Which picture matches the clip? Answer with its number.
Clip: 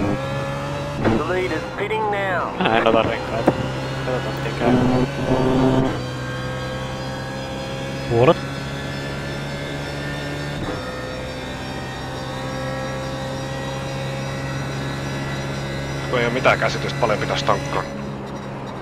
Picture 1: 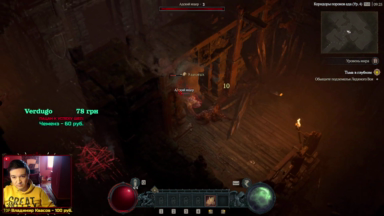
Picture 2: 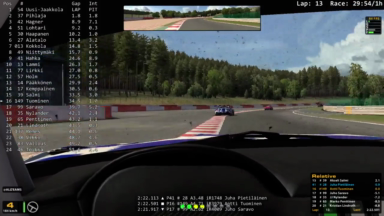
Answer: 2